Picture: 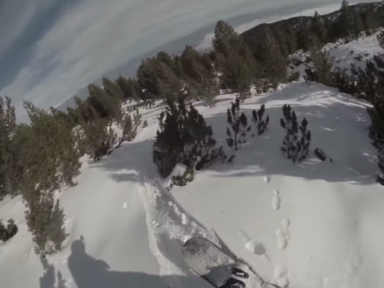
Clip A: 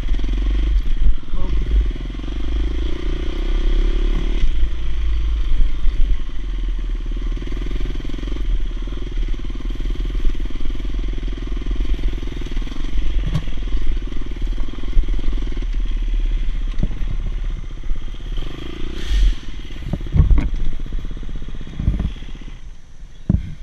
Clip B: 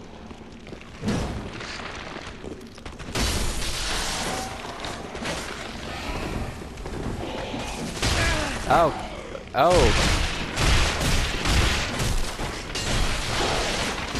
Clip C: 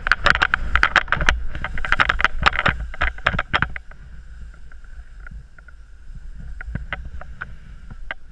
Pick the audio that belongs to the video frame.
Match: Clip C